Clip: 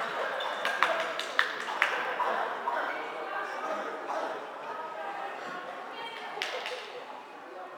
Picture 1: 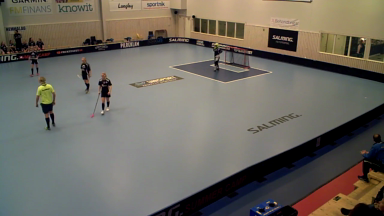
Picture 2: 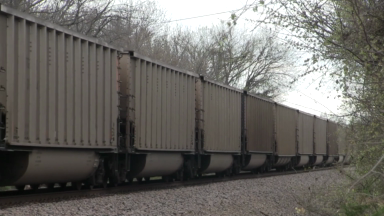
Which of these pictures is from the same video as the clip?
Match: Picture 1